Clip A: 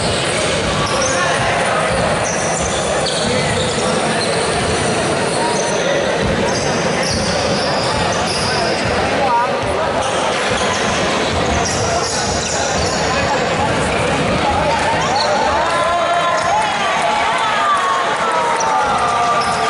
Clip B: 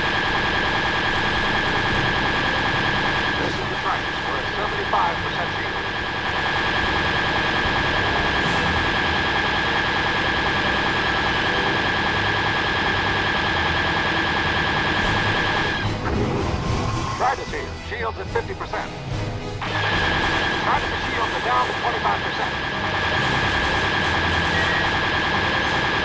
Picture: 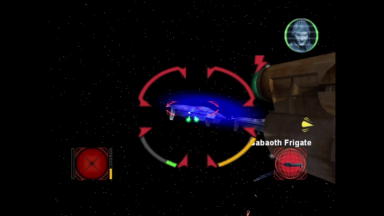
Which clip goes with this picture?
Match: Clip B